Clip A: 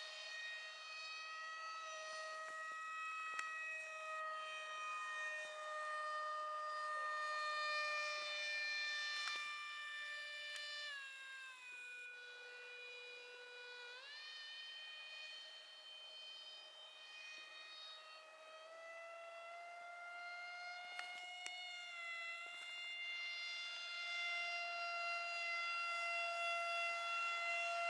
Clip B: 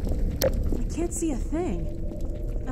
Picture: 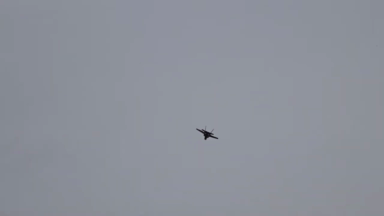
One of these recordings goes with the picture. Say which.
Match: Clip A